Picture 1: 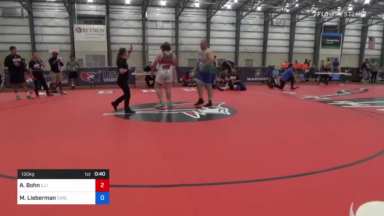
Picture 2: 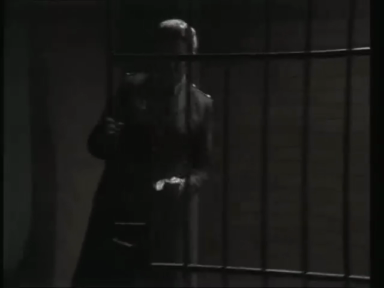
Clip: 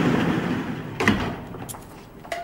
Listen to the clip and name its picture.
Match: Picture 2